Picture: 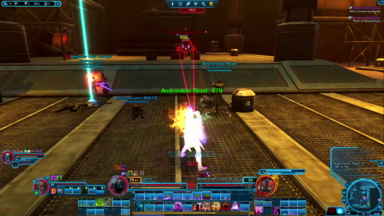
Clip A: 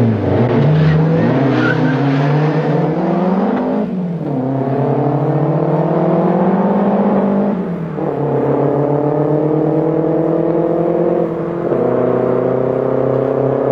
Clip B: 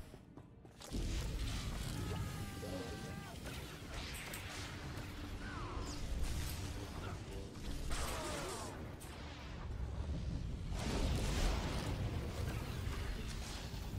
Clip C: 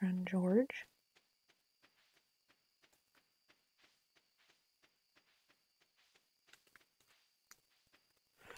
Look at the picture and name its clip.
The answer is B